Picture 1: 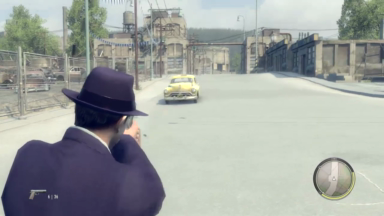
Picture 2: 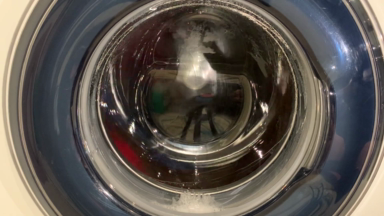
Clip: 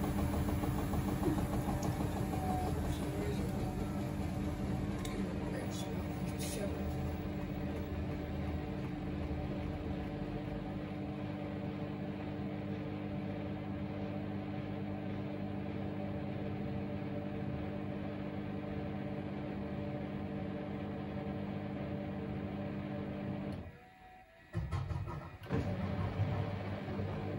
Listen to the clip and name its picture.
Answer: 2